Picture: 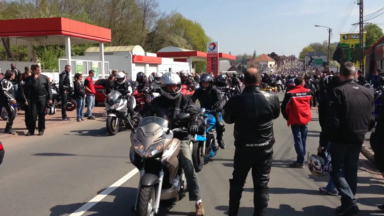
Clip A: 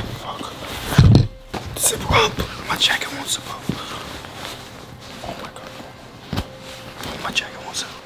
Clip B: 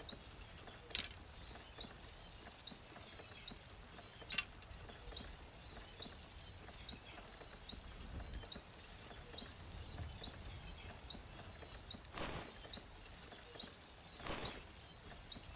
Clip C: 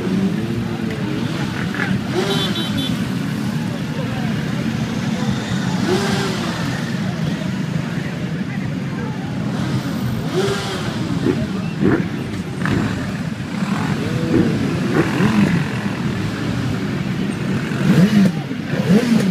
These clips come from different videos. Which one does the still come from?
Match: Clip C